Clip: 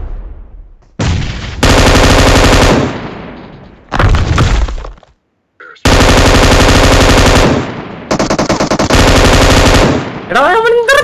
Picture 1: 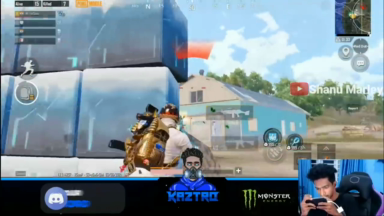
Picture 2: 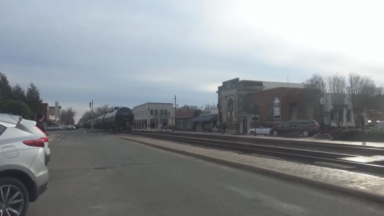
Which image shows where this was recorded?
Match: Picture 1